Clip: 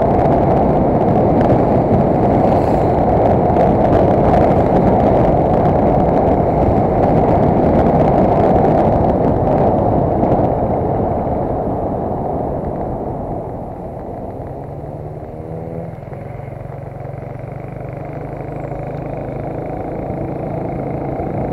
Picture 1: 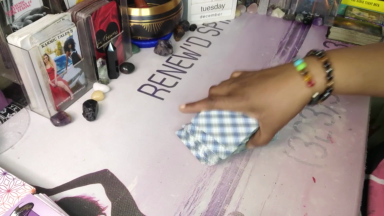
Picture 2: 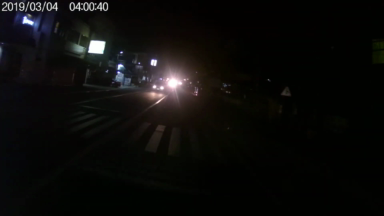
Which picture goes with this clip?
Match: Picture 2